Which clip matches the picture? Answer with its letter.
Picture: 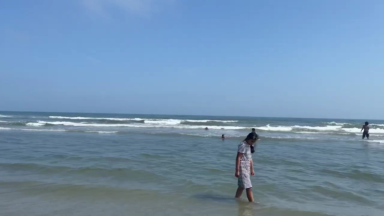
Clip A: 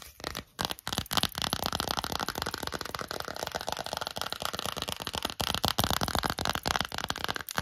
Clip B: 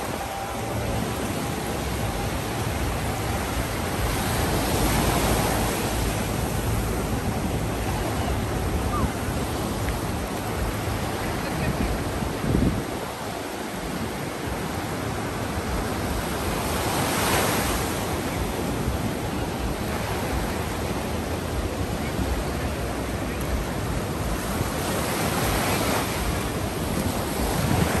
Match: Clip B